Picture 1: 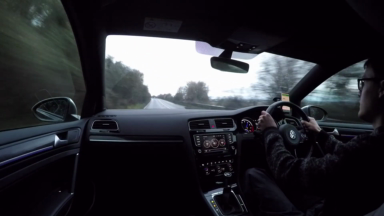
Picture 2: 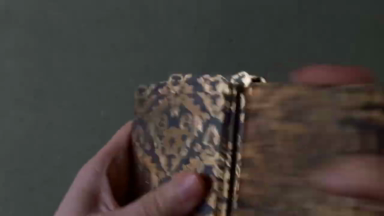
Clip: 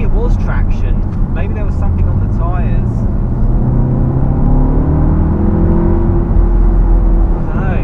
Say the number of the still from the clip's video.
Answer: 1